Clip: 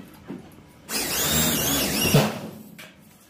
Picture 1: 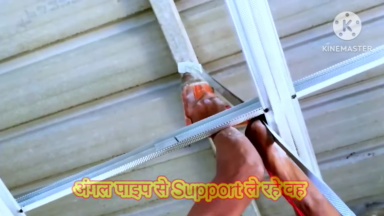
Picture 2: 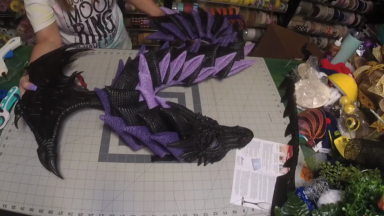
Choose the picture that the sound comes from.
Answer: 1